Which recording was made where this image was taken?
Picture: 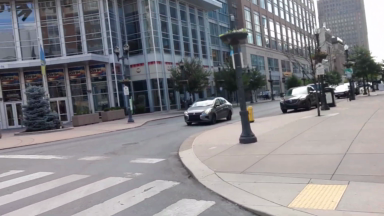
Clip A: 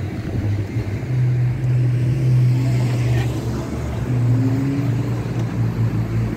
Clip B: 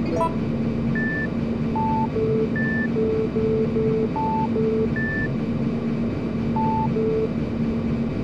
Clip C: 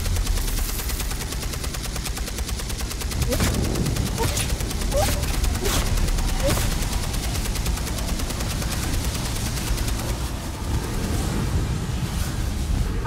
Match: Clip A